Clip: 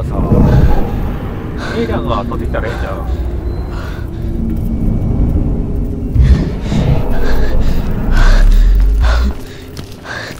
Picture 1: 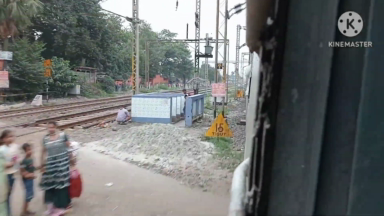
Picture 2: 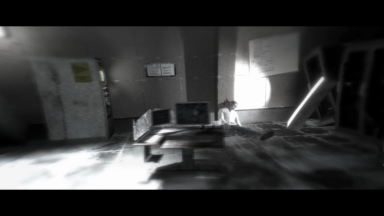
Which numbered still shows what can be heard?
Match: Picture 2